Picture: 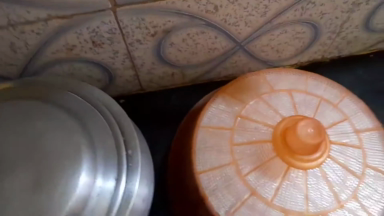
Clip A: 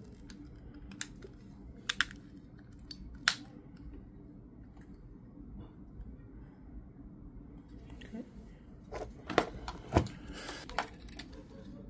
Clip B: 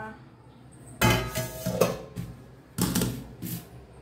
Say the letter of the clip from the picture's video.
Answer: B